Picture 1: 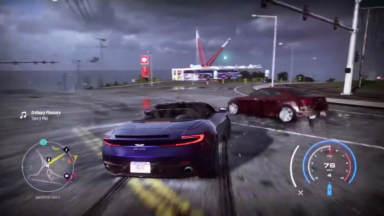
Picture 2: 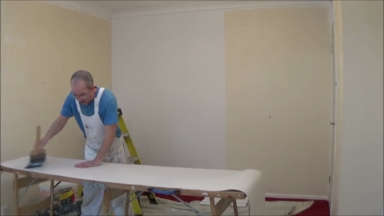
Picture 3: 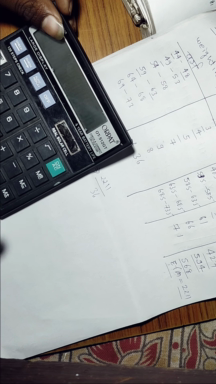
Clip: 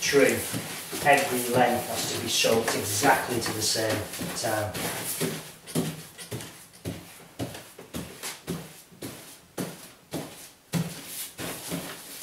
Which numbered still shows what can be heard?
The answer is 2